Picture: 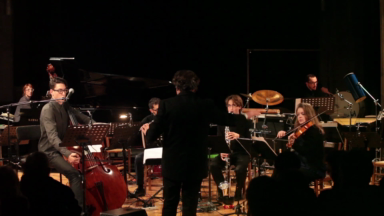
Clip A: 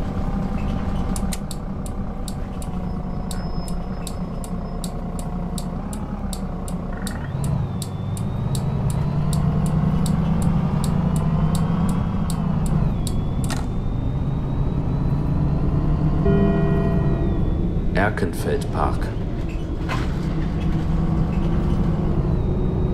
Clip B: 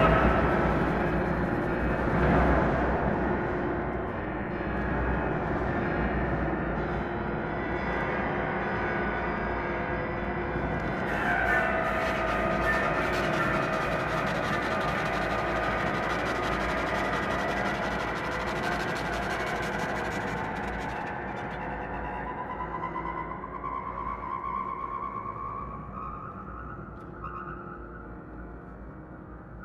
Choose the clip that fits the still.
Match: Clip B